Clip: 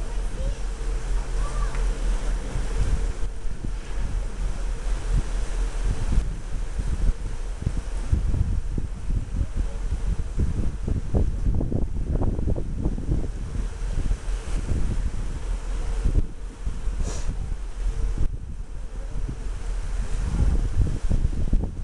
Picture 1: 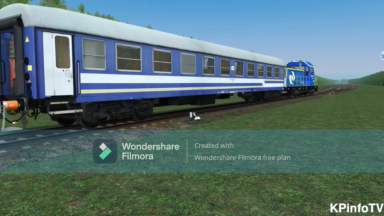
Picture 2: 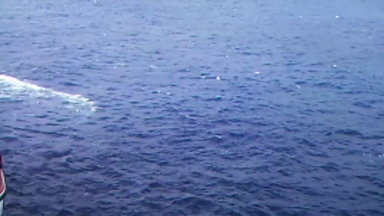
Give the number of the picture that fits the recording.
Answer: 2